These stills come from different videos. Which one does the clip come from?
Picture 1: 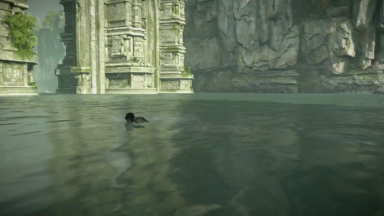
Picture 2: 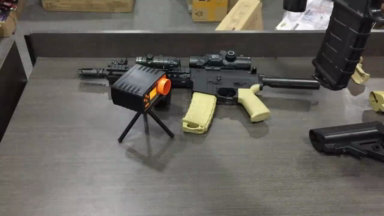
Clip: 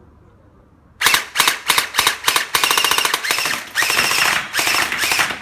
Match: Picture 2